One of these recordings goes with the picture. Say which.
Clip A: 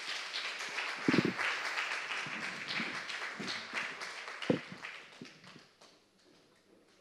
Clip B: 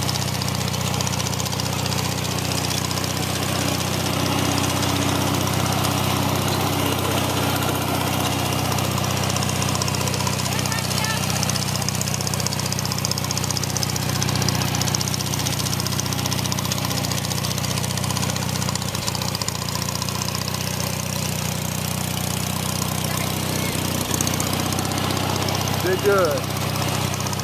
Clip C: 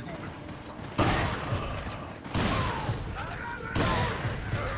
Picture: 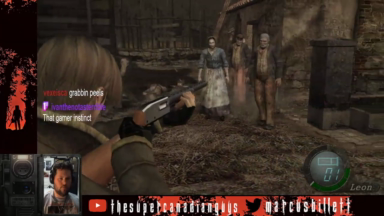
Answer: C